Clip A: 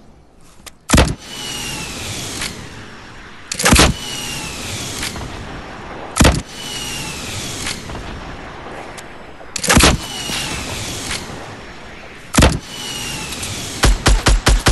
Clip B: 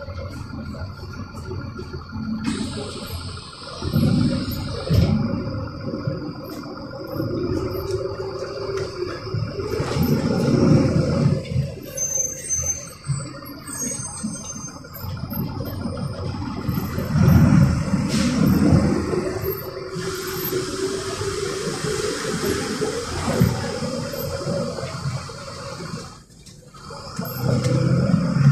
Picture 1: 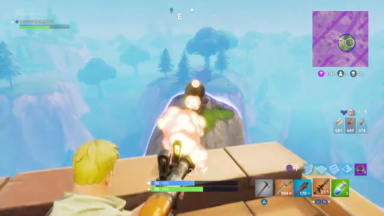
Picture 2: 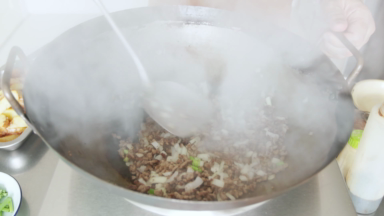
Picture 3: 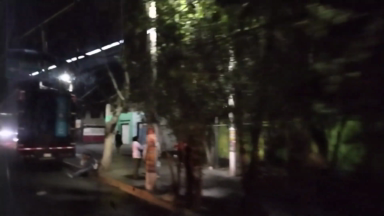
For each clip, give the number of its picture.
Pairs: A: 1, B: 3